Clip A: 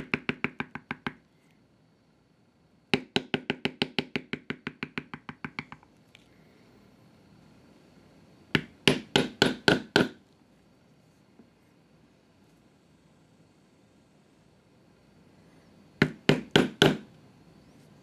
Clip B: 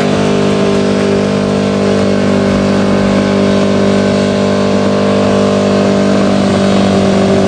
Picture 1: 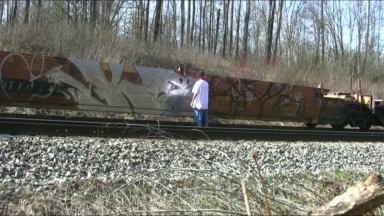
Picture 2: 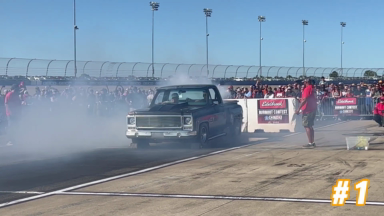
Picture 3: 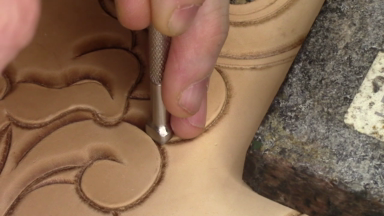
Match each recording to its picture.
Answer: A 3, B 2